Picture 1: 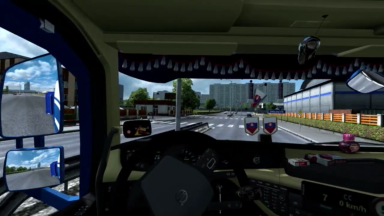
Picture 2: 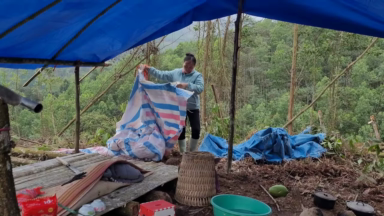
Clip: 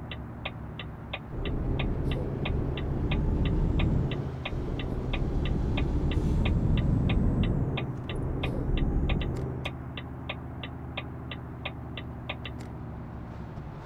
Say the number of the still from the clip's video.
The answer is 1